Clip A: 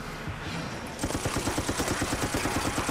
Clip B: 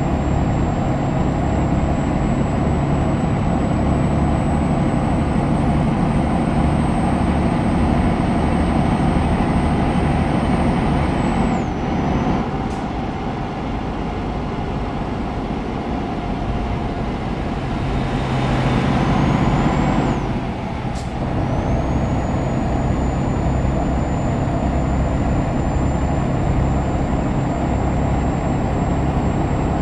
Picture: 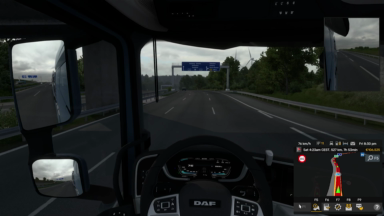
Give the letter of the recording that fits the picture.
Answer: B